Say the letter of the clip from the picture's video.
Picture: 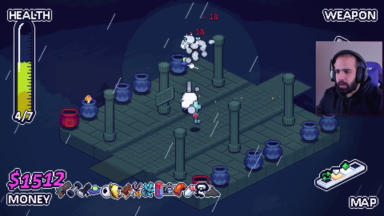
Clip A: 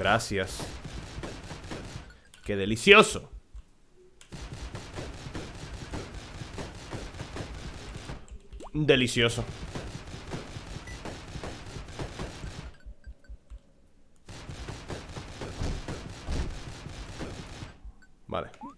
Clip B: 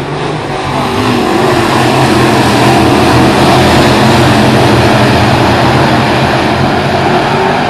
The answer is A